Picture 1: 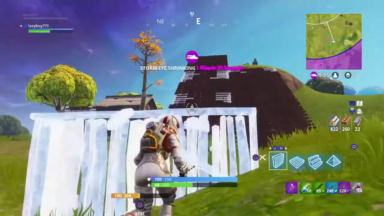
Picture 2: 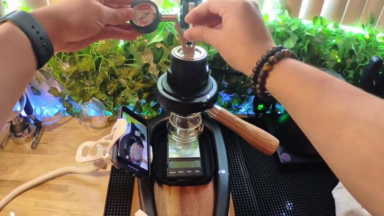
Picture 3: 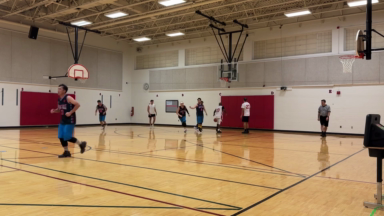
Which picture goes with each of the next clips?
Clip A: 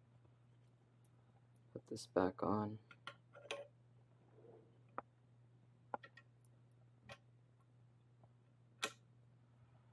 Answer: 2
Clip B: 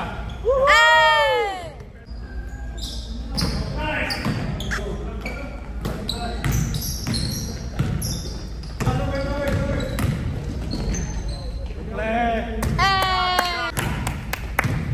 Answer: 3